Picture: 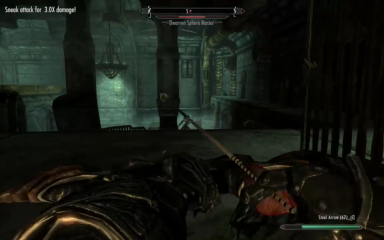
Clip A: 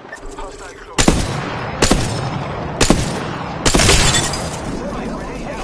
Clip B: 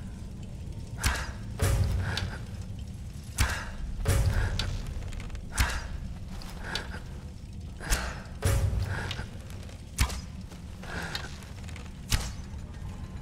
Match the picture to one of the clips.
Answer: B